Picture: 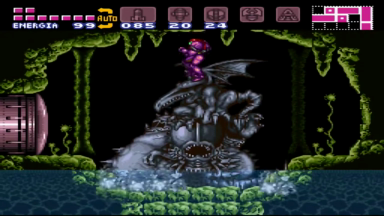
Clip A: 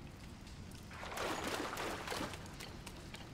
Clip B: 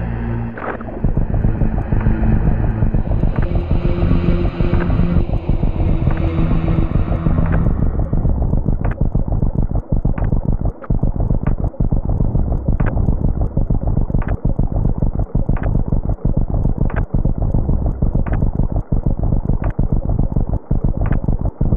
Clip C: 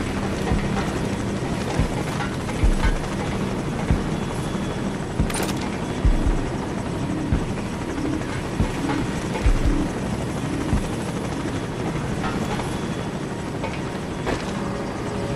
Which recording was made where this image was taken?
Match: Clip B